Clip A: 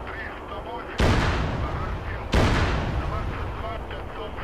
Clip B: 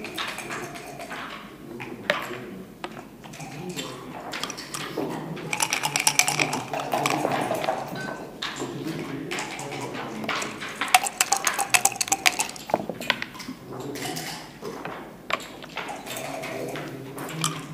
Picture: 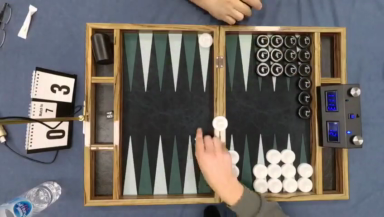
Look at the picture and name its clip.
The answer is B